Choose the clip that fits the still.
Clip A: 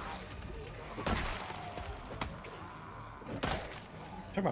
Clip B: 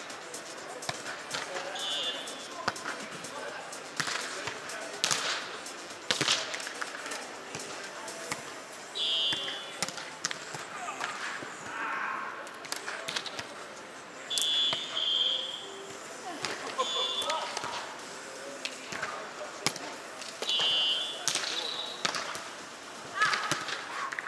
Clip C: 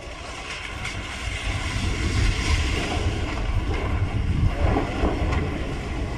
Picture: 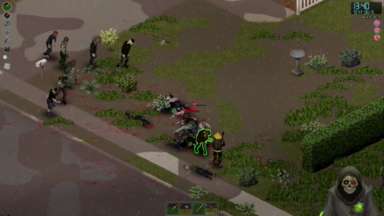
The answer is A